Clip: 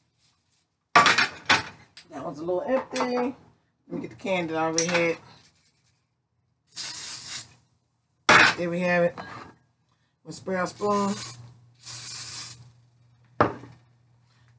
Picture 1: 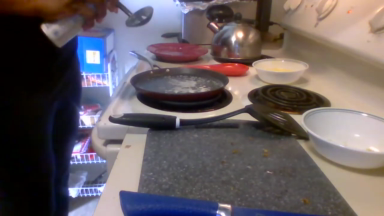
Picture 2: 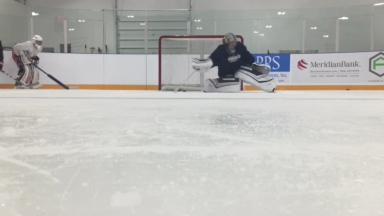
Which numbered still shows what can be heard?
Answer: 1